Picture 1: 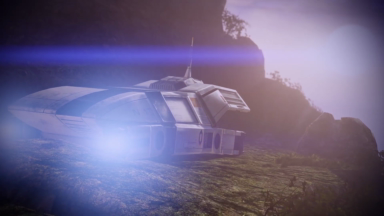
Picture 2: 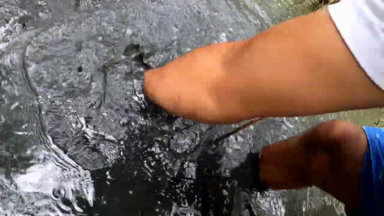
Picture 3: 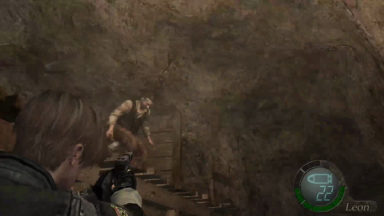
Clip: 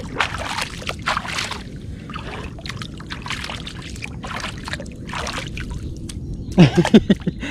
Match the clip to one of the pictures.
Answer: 2